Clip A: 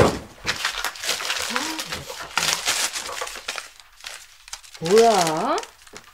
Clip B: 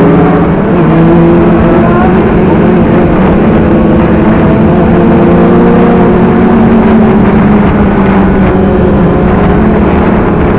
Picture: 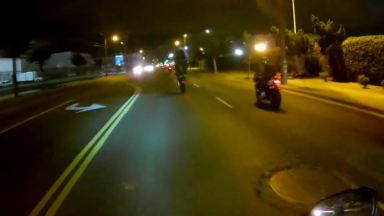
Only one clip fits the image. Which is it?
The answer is B